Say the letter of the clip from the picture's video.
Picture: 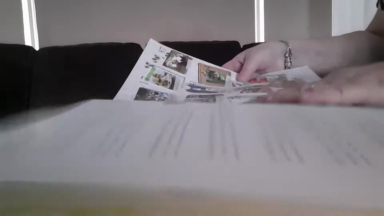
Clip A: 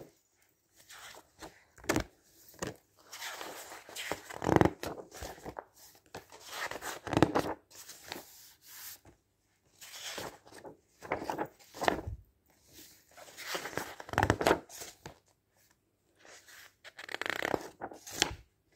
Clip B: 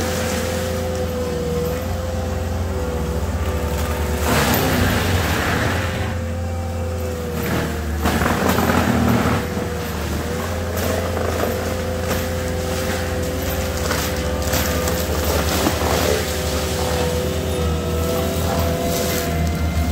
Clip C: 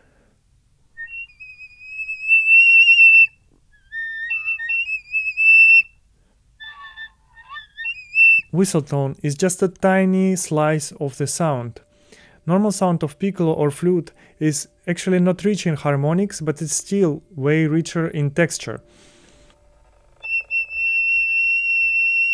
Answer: A